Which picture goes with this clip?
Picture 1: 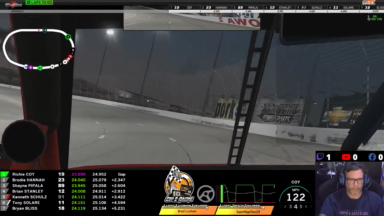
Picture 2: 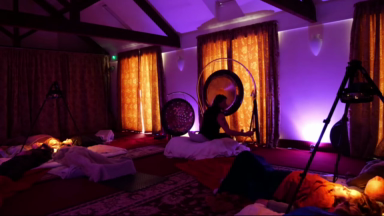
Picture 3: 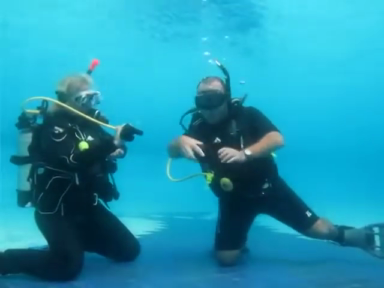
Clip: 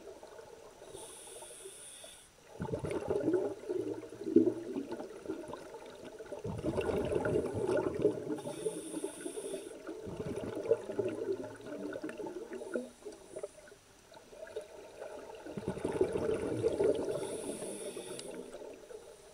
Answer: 3